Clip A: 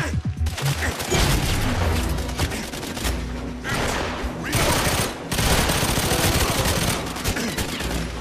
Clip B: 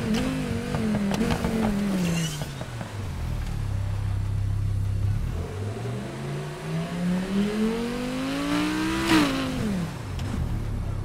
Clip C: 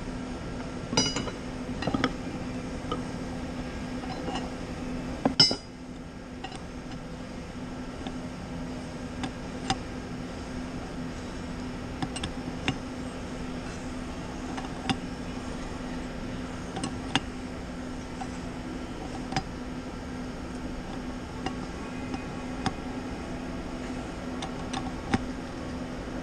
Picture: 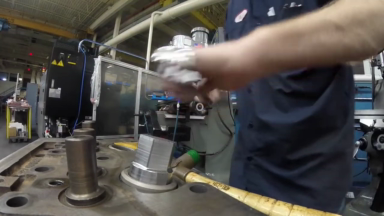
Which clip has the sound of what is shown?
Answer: C